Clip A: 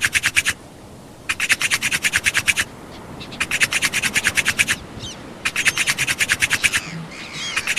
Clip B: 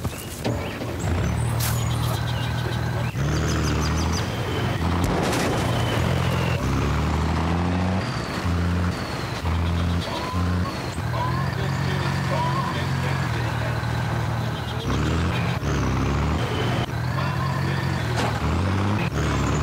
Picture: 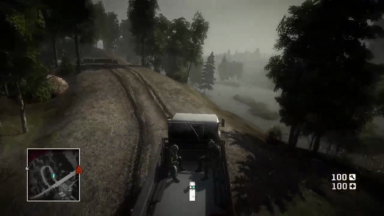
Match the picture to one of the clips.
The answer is B